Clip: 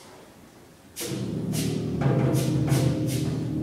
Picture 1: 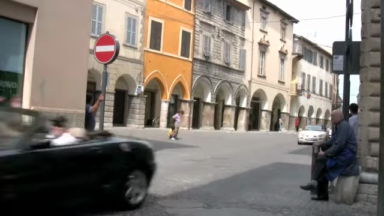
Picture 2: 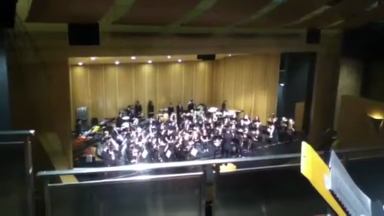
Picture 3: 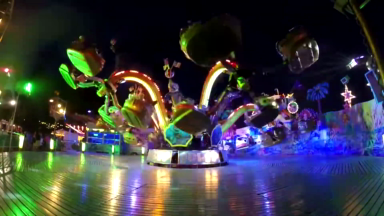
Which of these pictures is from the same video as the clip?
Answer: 2